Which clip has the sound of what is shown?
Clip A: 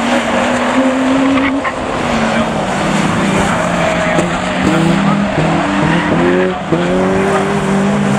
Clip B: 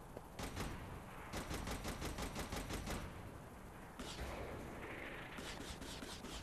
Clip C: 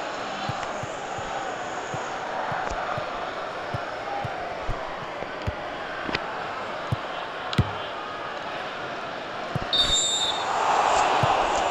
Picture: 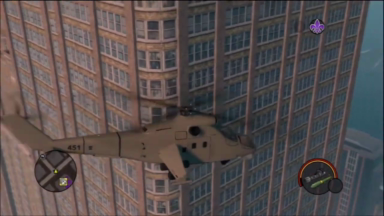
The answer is B